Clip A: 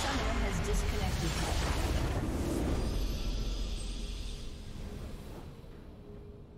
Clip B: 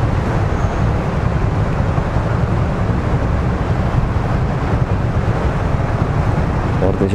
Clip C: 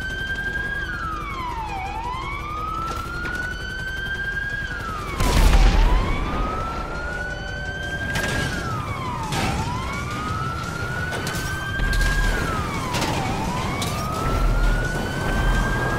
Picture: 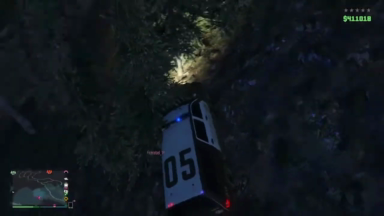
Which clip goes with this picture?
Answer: C